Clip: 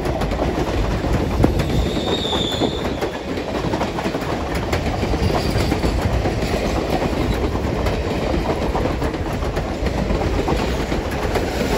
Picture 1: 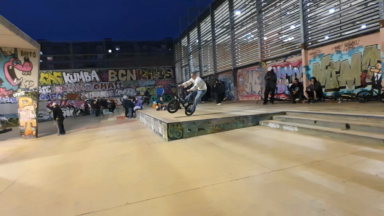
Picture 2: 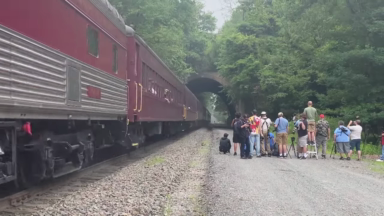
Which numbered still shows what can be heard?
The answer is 2